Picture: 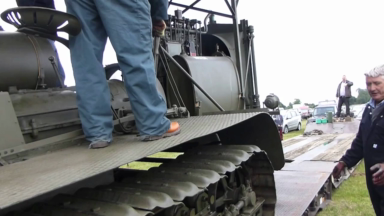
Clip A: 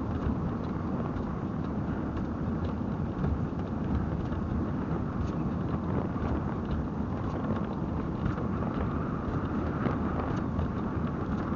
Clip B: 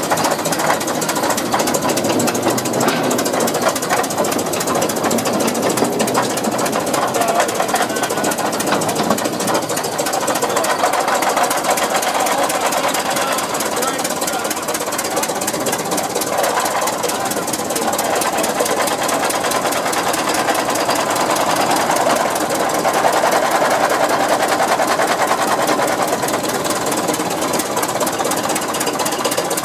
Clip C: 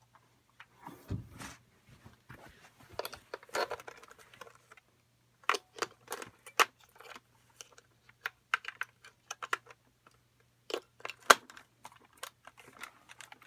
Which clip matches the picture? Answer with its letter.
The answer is B